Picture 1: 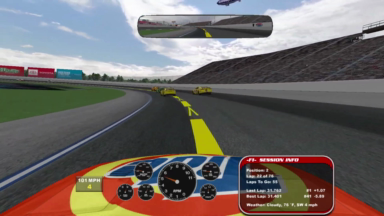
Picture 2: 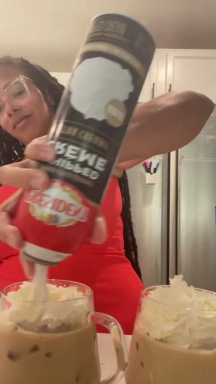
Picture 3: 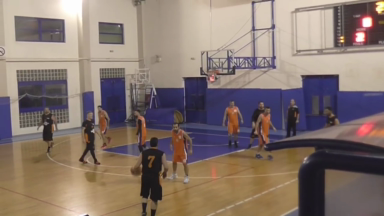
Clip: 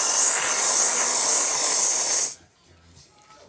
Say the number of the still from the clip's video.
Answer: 2